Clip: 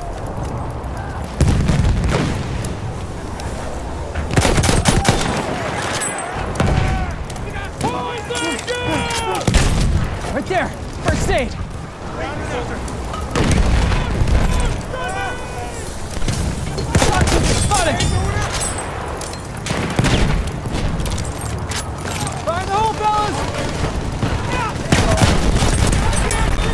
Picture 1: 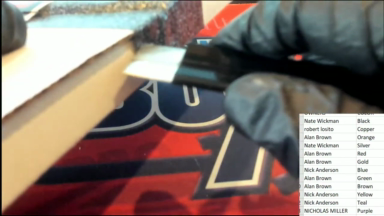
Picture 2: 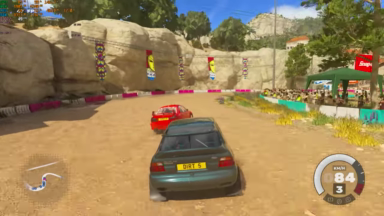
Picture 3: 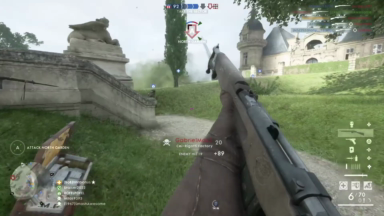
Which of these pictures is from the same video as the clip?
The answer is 3